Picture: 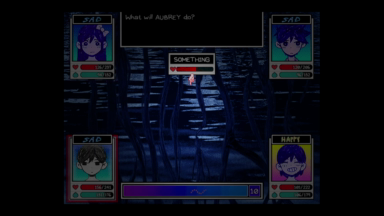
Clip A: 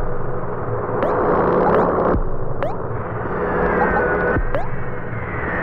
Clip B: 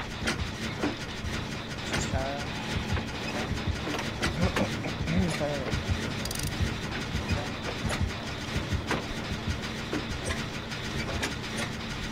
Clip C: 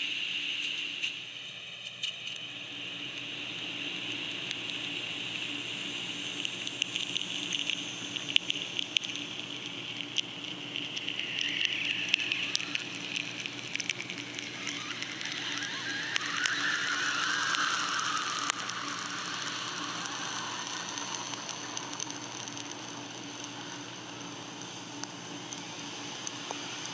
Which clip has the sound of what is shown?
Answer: A